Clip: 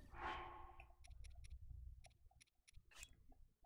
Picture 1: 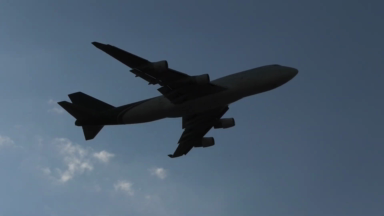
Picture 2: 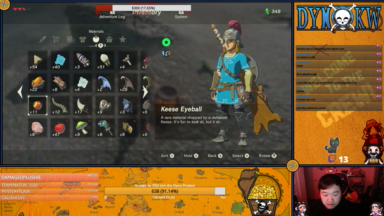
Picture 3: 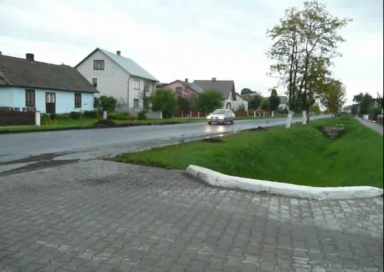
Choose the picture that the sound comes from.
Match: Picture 2